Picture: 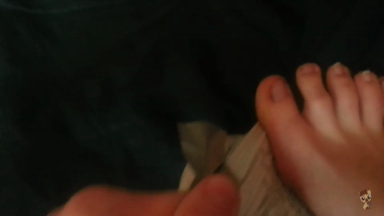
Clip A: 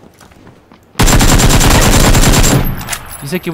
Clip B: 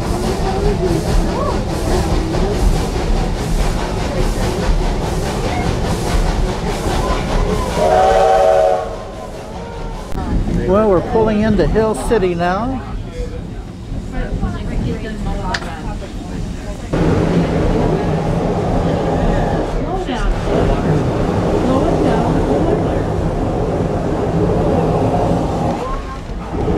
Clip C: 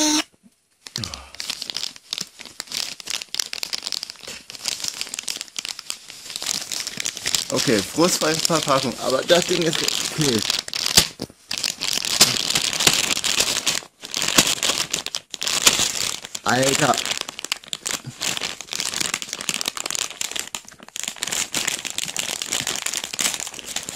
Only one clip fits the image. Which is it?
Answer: C